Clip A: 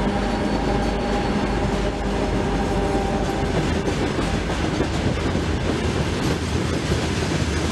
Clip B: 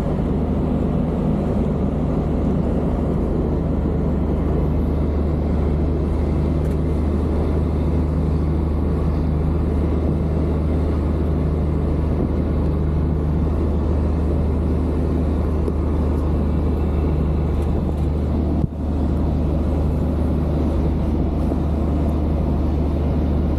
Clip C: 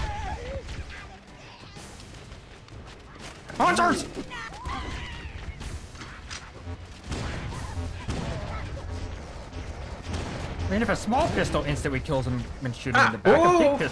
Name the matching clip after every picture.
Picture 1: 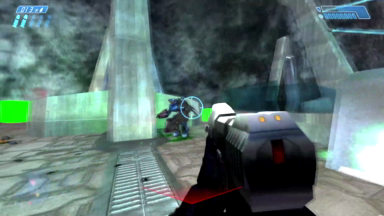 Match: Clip C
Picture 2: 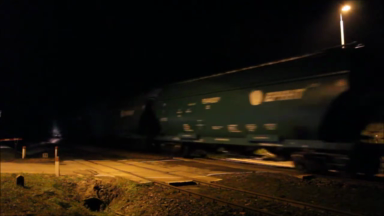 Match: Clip A